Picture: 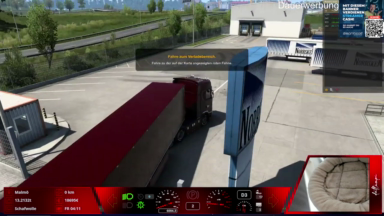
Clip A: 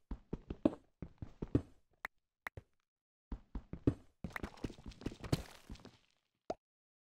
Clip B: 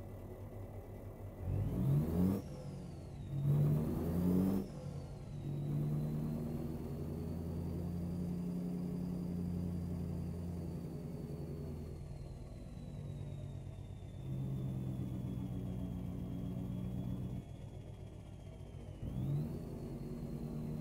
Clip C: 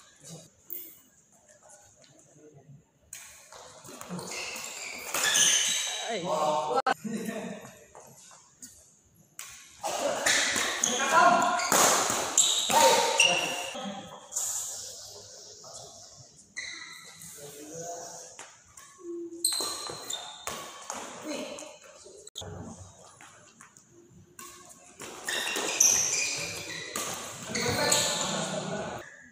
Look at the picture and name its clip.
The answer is B